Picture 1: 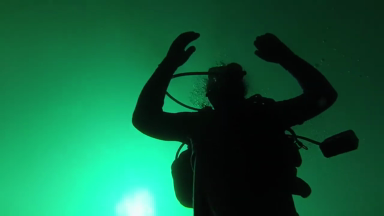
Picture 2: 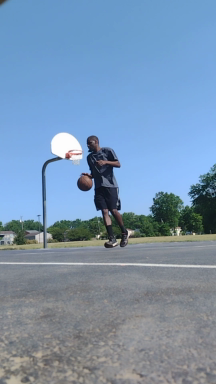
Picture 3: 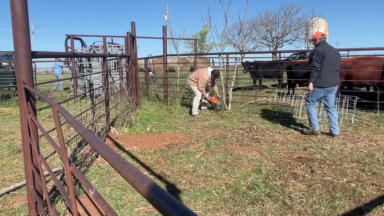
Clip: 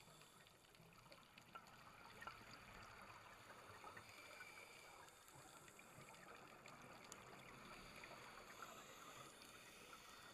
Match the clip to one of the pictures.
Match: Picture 1